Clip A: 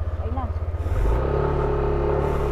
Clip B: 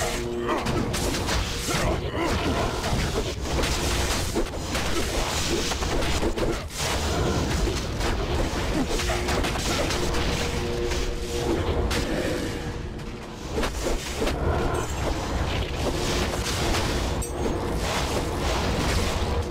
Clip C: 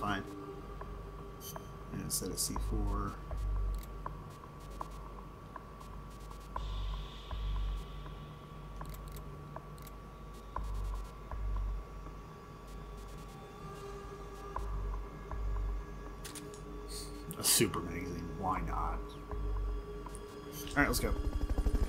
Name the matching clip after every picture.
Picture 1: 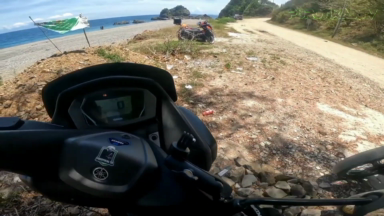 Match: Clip A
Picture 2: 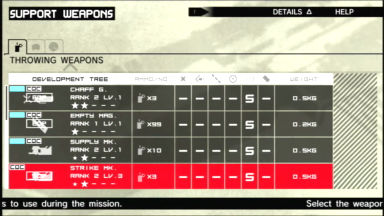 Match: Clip C